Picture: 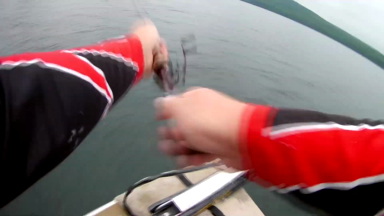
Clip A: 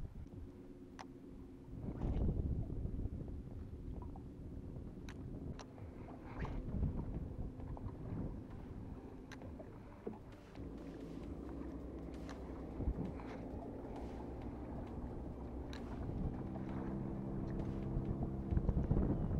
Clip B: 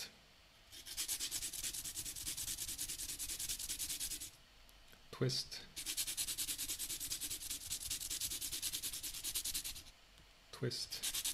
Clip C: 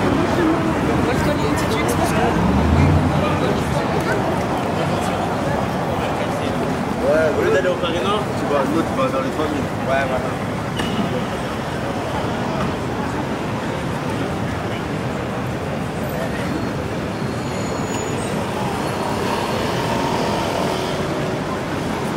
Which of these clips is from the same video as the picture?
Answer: A